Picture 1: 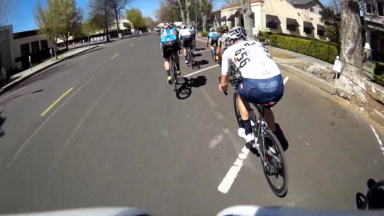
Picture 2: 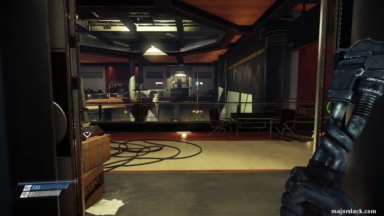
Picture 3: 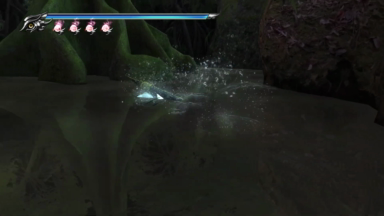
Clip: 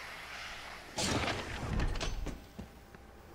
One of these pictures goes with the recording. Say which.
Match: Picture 2